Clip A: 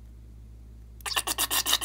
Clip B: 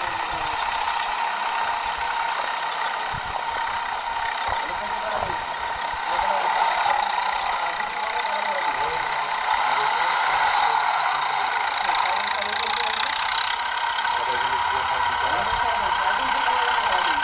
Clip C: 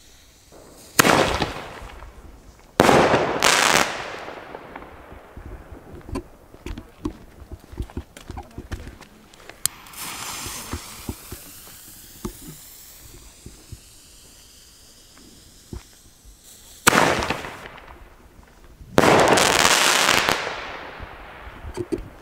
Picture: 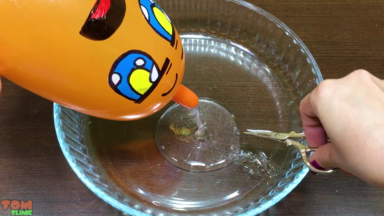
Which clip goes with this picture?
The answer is A